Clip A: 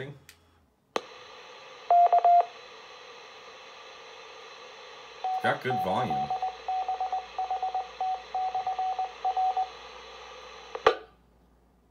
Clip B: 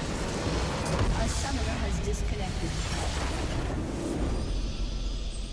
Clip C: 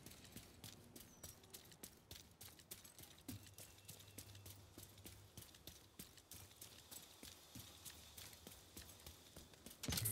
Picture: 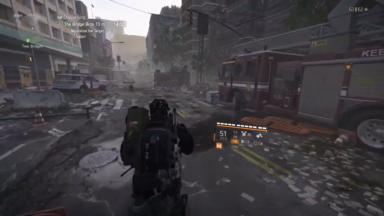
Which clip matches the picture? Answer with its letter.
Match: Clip C